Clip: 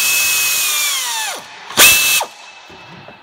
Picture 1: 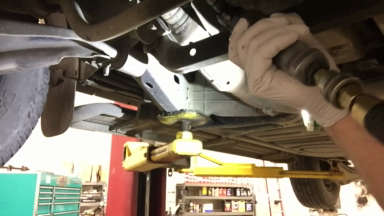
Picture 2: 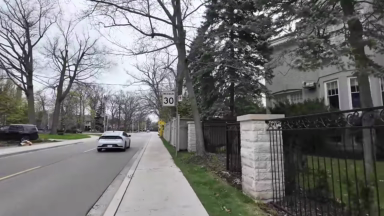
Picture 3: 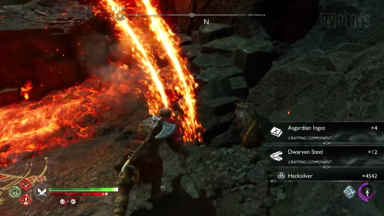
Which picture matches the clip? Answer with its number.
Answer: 1